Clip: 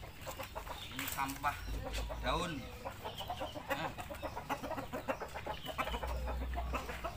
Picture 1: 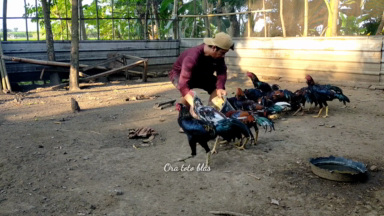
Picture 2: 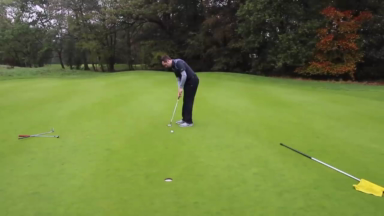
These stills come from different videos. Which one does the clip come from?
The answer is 1